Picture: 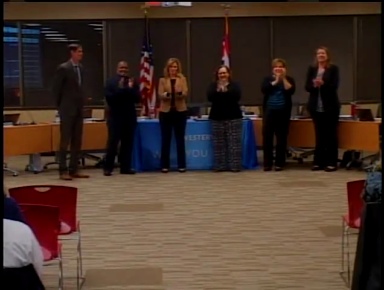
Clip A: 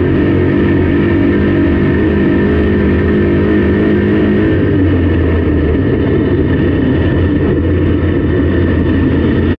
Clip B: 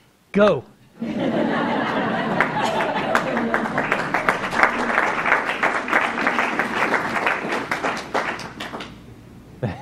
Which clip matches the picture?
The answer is B